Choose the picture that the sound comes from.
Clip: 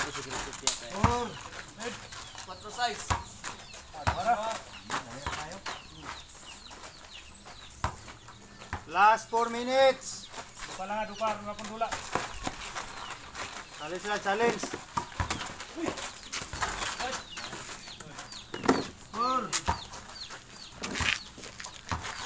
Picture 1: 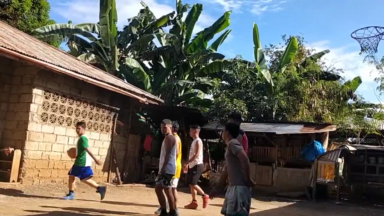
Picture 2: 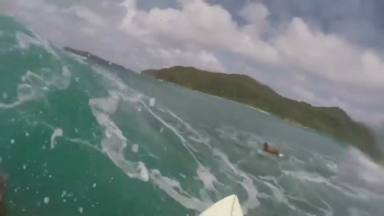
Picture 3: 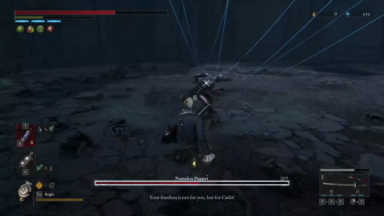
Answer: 1